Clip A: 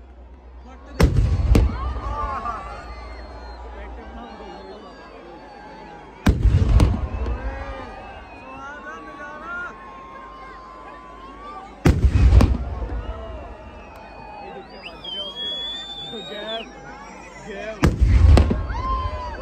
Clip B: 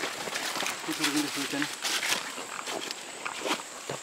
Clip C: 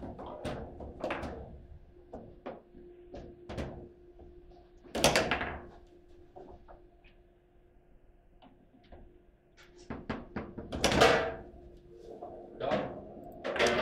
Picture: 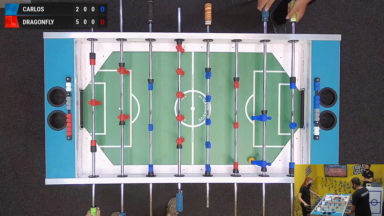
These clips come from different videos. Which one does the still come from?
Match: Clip C